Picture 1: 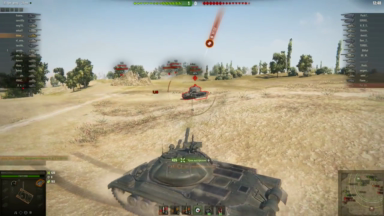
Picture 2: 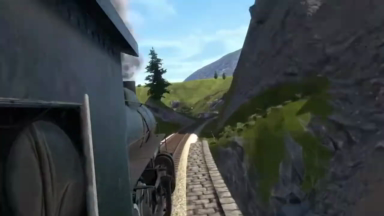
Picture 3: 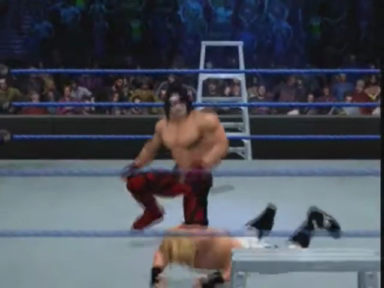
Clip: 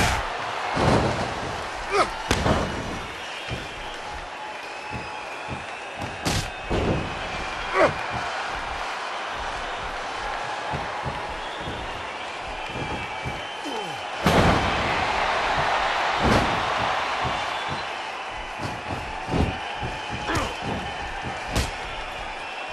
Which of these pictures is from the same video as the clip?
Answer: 3